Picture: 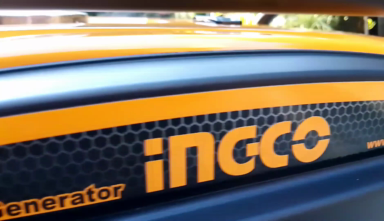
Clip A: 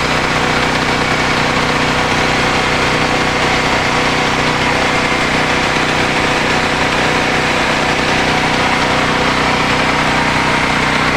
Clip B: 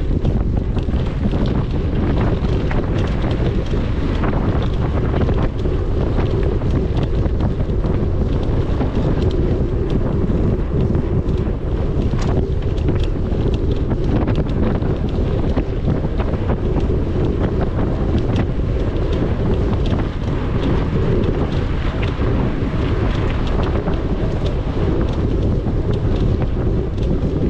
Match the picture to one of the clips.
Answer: A